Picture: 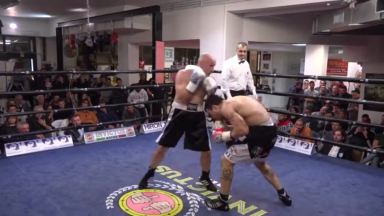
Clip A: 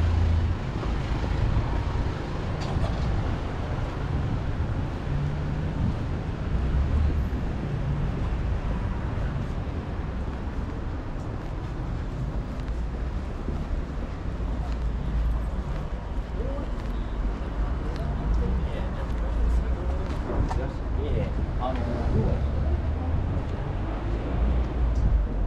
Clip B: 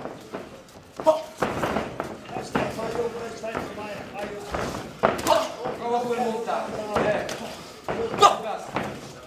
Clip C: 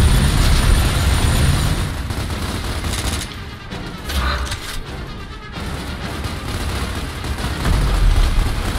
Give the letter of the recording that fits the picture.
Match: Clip B